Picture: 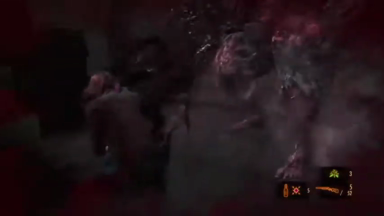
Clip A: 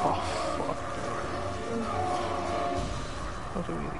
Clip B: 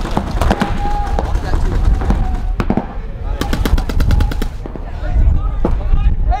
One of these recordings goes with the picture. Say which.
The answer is A